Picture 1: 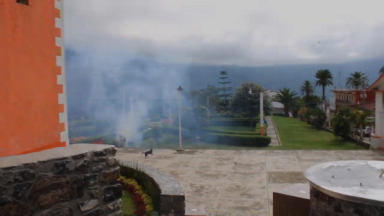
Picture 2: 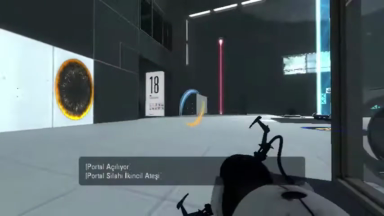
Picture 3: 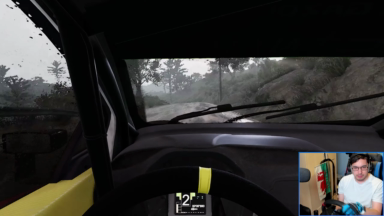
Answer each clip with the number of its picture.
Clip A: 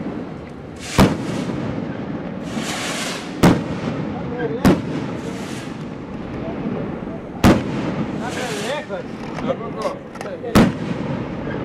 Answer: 1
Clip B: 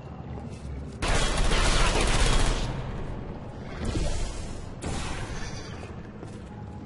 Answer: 2